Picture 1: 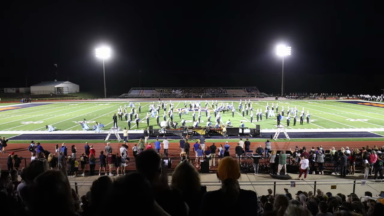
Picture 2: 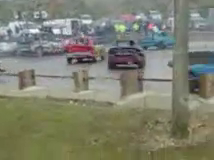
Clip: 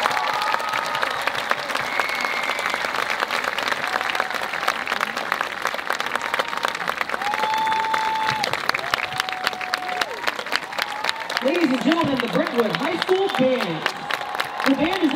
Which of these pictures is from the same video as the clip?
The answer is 1